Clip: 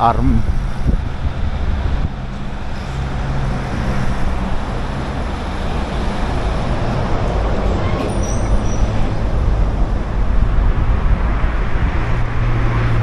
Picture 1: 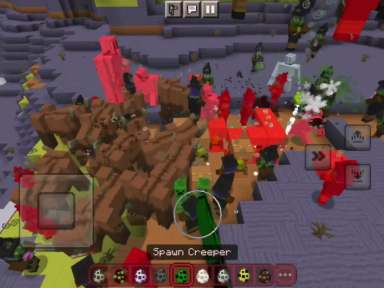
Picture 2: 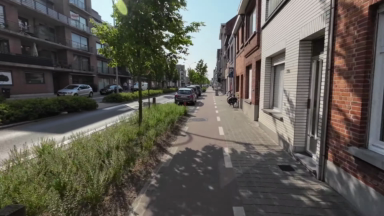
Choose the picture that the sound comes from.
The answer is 2